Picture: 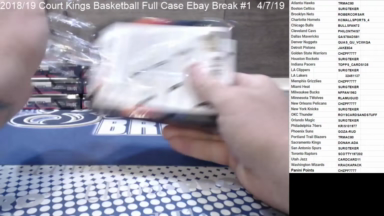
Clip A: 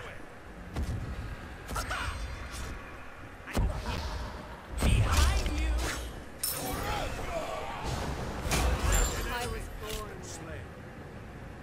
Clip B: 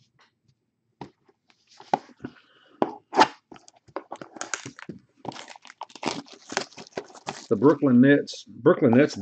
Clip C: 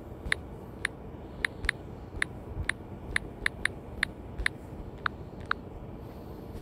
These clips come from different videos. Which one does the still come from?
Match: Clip B